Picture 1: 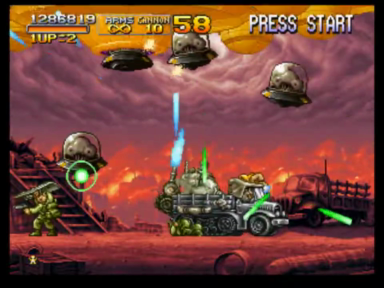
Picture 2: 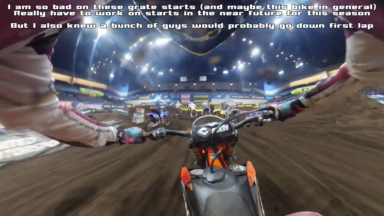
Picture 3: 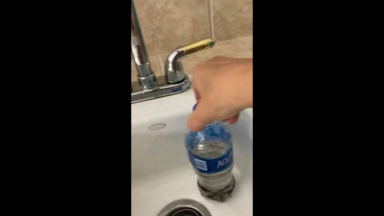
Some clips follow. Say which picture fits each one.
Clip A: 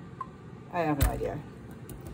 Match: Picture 3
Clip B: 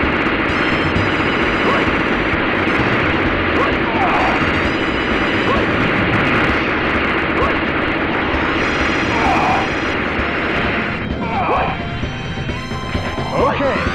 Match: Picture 1